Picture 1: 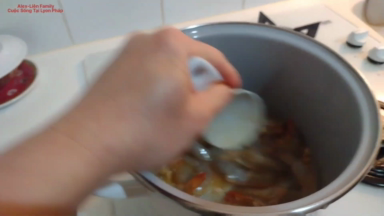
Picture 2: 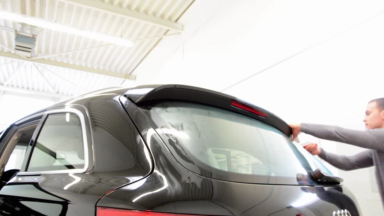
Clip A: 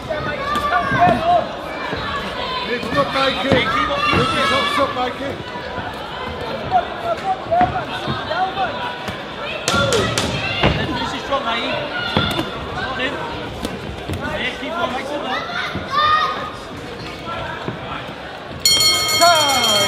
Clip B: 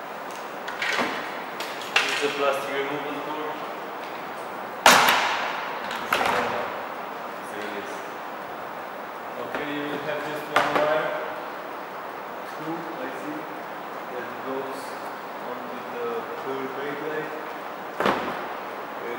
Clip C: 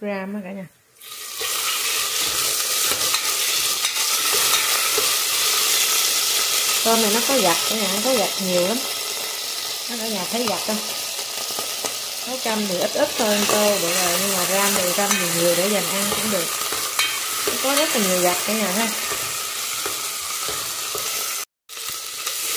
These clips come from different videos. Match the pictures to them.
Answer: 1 C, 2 B